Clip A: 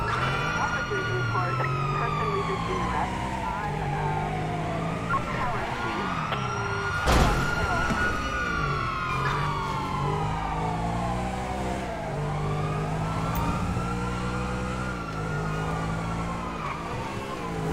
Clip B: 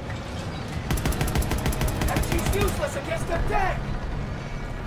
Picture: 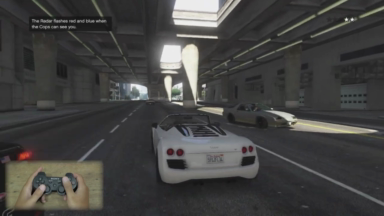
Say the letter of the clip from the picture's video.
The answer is A